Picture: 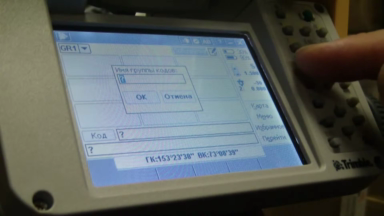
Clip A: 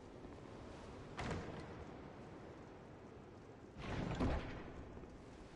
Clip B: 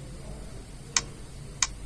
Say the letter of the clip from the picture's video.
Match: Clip B